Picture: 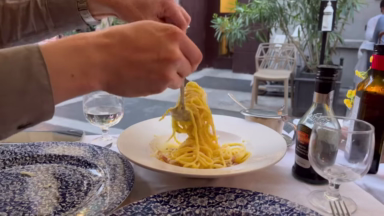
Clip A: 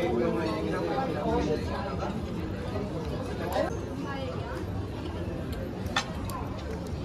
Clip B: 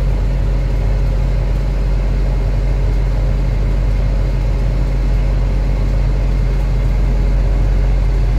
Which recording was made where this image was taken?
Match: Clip A